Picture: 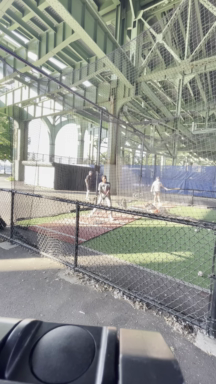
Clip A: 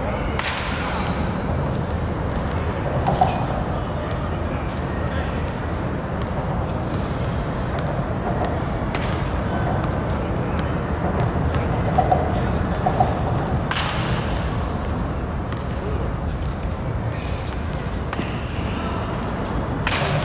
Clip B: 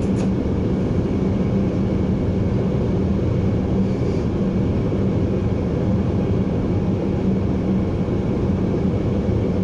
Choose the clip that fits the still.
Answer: A